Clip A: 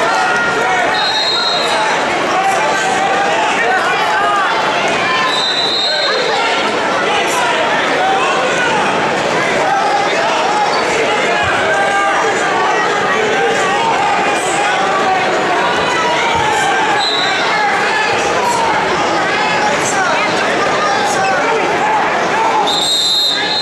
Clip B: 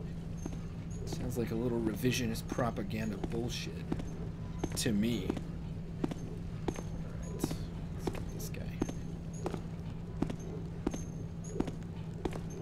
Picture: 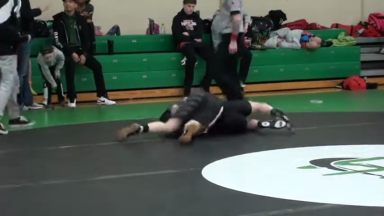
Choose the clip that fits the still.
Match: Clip A